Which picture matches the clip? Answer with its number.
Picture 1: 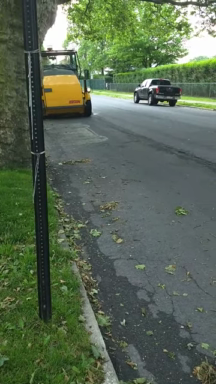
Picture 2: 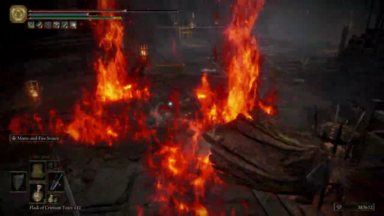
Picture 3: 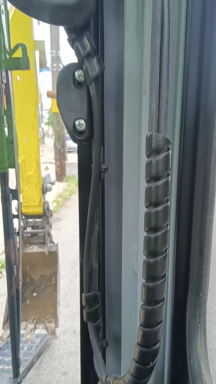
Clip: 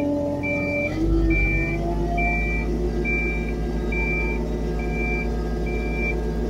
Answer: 3